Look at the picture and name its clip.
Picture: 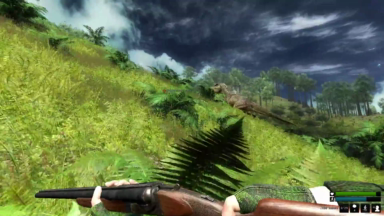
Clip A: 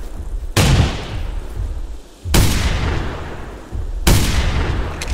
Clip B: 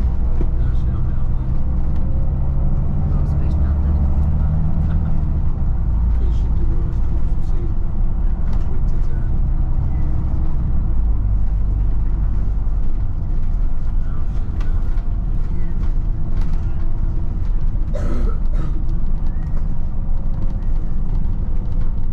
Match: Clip A